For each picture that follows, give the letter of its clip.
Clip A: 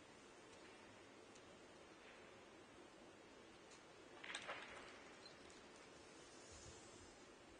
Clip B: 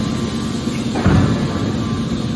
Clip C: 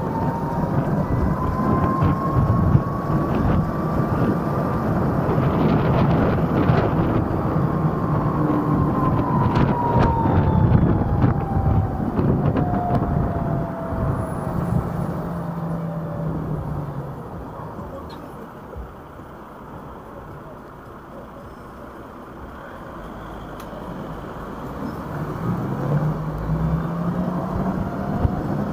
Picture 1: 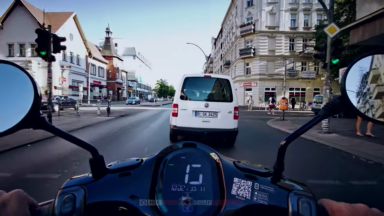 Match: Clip C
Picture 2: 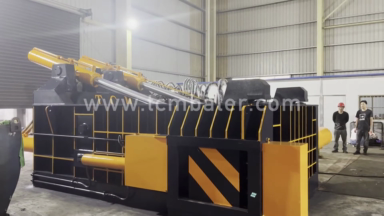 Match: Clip B